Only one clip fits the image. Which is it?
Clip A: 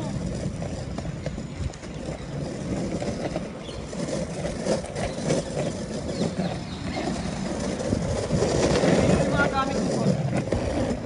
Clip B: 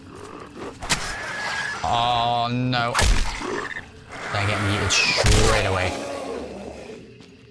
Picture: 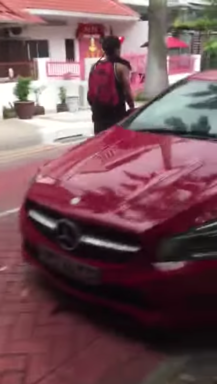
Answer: A